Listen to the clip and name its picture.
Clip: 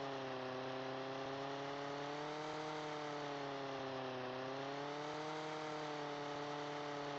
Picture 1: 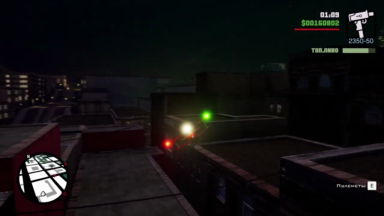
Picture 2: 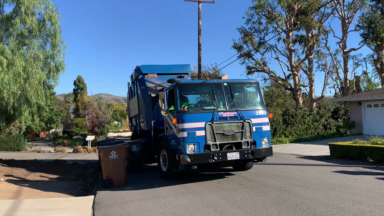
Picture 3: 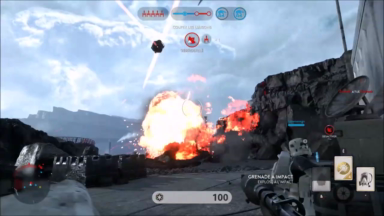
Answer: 1